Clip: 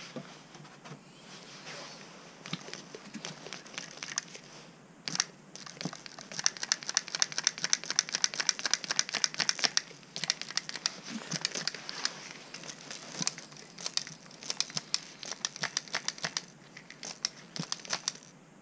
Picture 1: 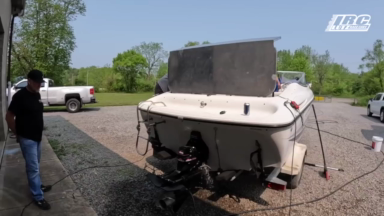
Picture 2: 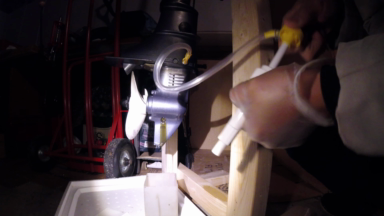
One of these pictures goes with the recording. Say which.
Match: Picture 2